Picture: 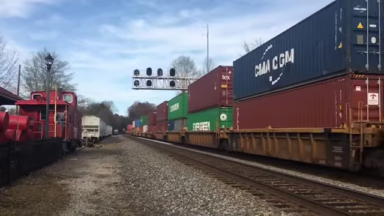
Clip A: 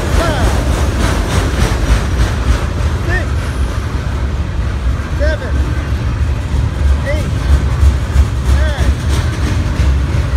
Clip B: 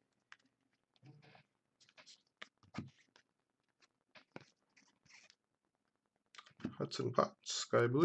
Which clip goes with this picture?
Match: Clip A